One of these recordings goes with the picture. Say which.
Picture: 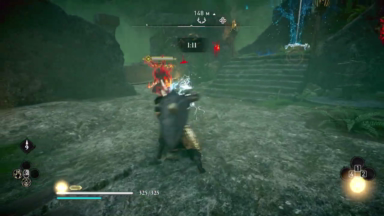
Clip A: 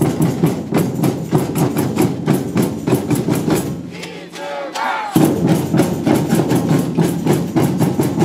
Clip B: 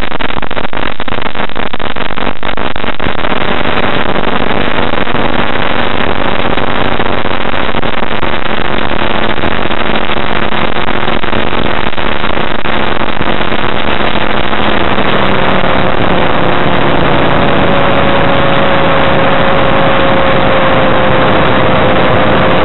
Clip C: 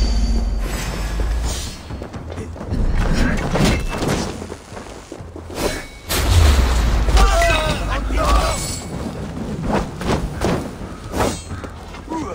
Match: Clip C